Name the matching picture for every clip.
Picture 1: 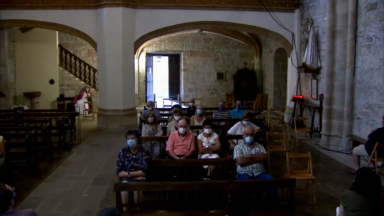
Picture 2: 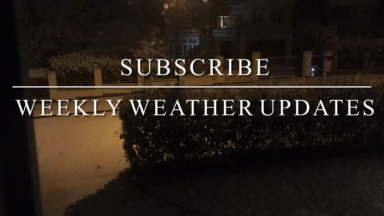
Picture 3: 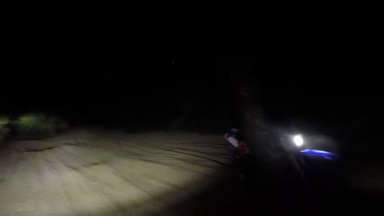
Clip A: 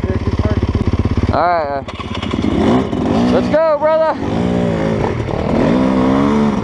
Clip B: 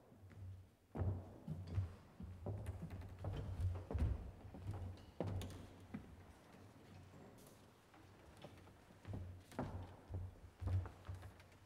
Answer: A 3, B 1